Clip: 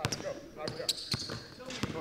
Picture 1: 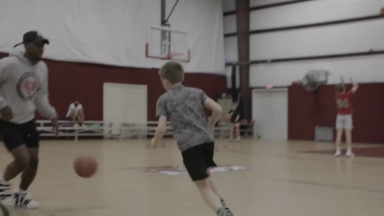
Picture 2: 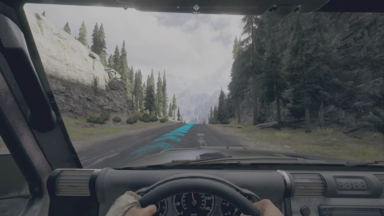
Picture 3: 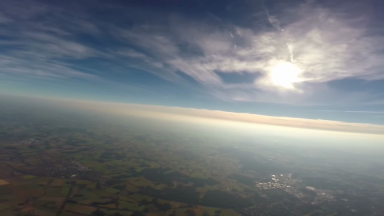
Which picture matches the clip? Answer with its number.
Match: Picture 1